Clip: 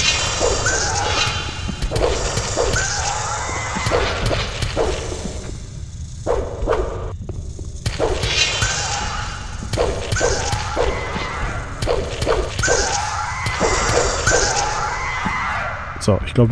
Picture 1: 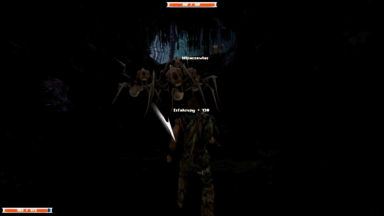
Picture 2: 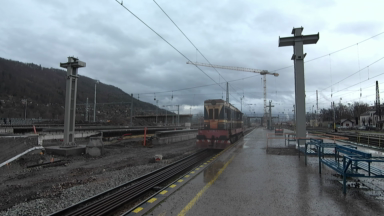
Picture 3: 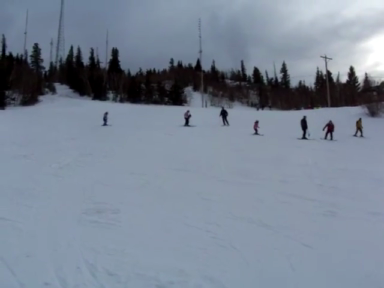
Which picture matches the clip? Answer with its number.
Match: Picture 1